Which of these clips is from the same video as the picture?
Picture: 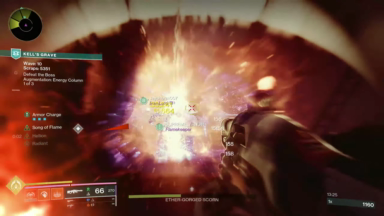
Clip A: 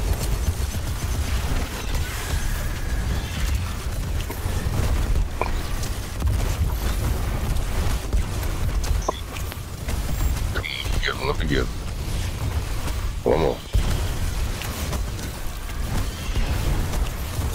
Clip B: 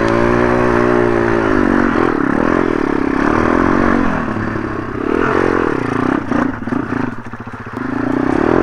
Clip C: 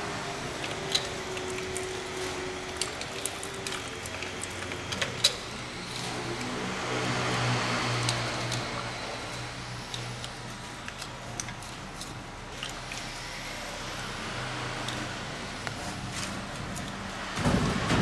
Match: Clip A